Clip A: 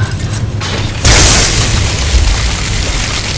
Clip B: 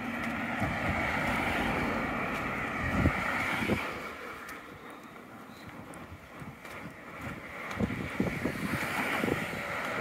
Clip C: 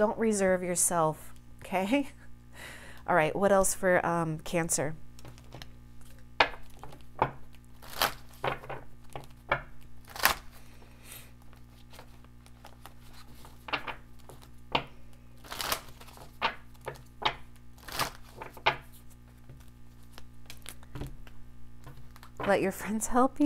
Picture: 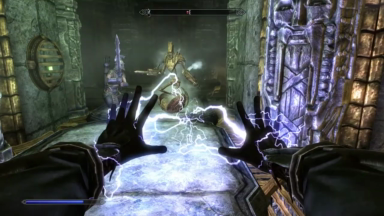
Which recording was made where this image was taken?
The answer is A